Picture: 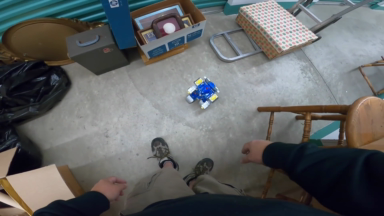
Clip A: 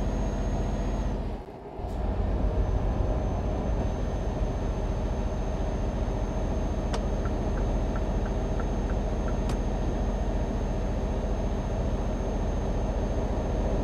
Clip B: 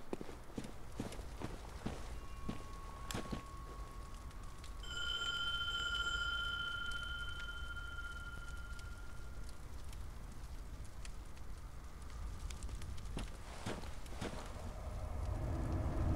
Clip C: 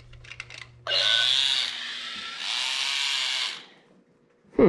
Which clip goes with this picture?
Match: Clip C